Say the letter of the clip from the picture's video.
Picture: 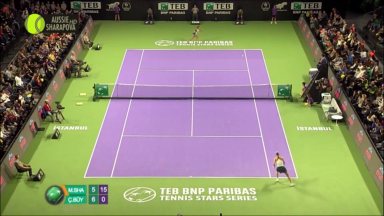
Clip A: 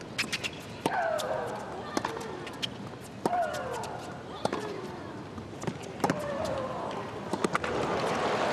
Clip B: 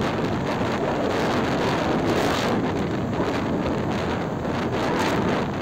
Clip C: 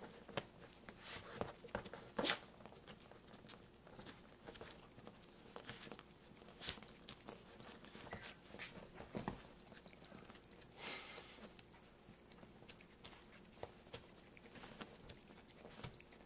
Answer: A